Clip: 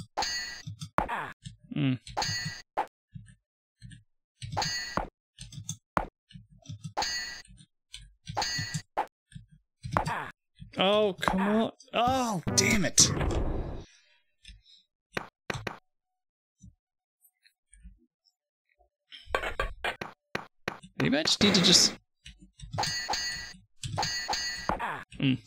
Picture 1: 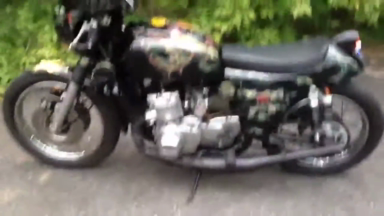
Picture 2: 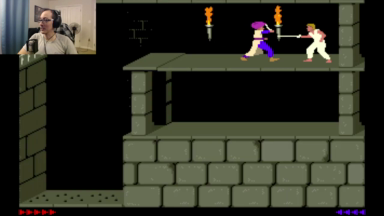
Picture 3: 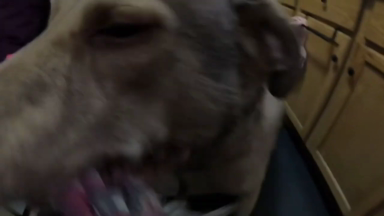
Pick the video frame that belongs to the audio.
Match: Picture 2